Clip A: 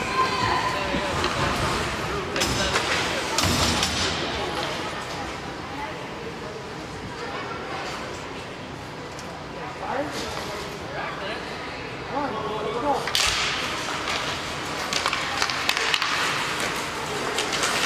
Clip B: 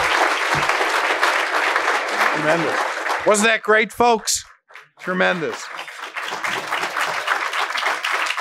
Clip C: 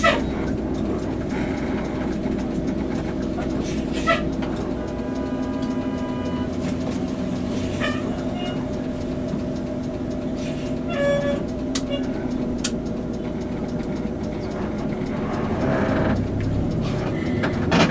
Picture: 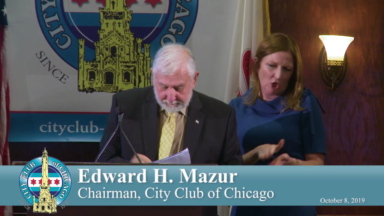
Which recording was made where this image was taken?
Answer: B